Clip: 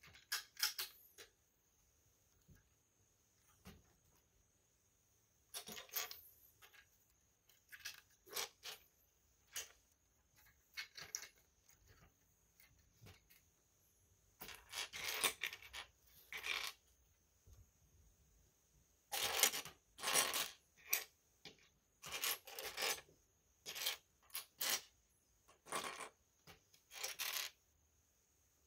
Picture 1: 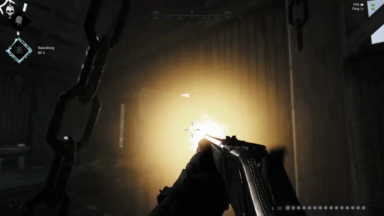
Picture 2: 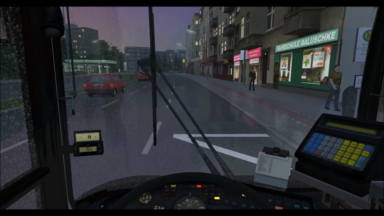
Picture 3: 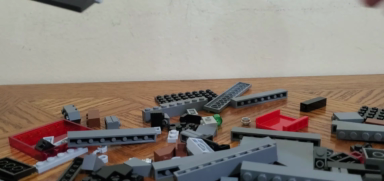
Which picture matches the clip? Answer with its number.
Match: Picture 3